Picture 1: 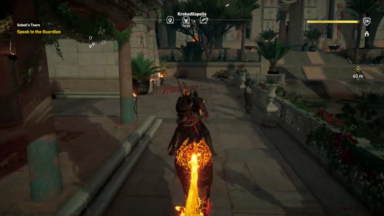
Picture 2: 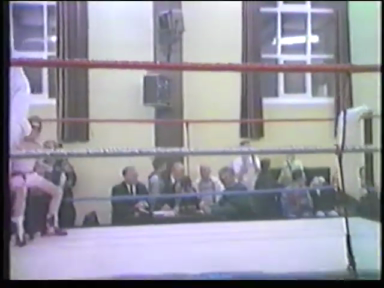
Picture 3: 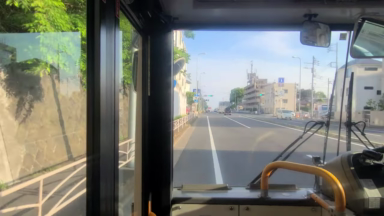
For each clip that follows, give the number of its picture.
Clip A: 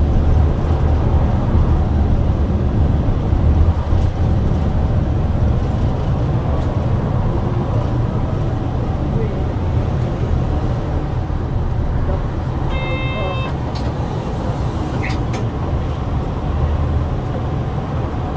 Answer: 3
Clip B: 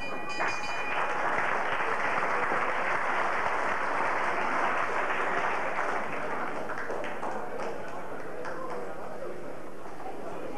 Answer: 2